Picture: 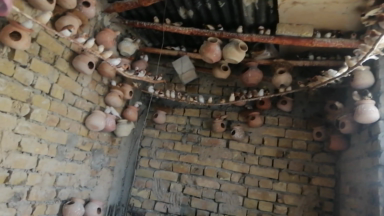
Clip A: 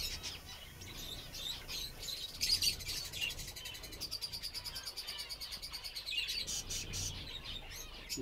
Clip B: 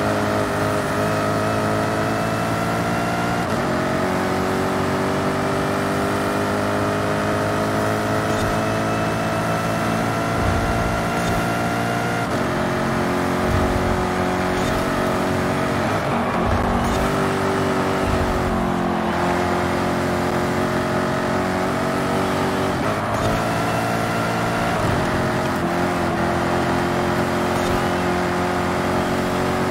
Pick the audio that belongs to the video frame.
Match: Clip A